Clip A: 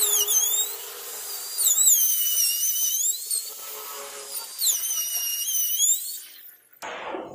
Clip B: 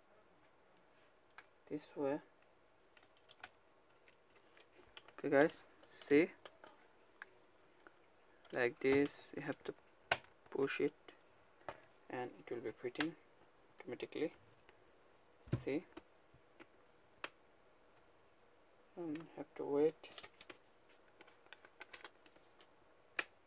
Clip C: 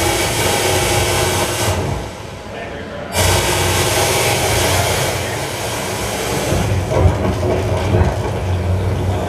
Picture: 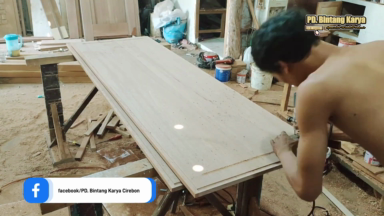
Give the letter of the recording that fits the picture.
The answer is A